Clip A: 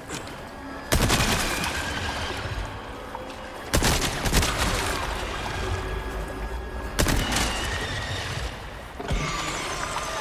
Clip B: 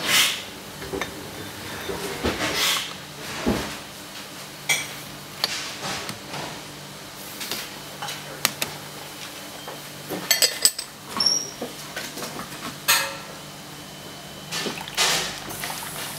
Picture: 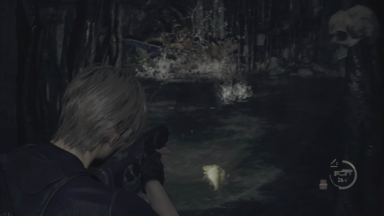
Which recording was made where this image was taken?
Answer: A